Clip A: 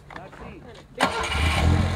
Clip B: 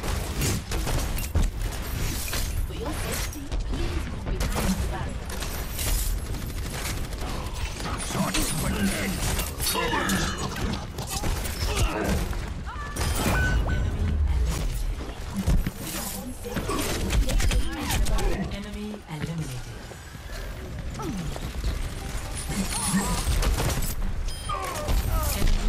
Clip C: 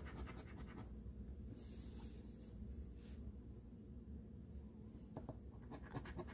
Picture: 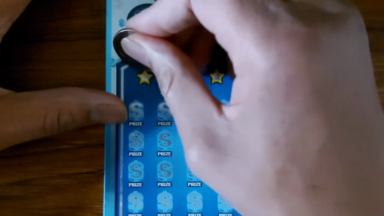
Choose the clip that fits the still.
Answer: C